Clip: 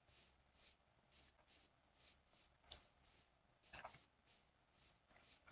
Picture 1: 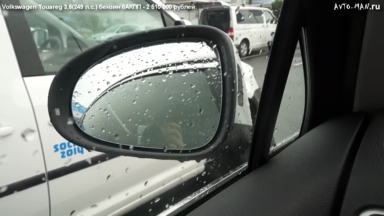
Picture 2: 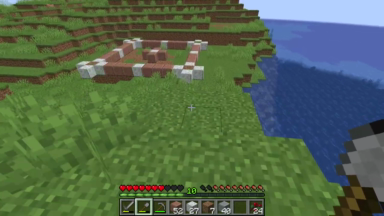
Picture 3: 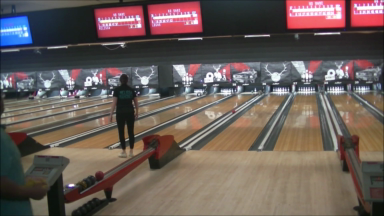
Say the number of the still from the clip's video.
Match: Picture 2